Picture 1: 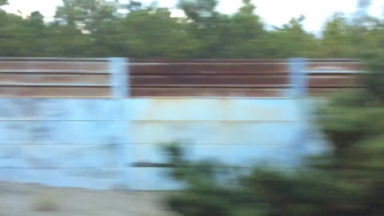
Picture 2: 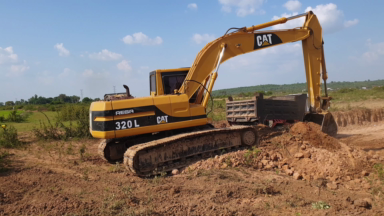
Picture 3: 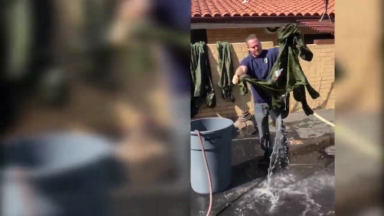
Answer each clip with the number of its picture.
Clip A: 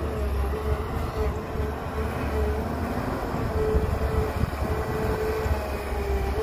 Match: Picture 2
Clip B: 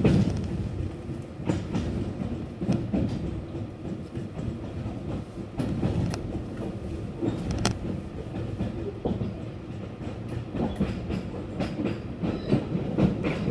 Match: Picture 1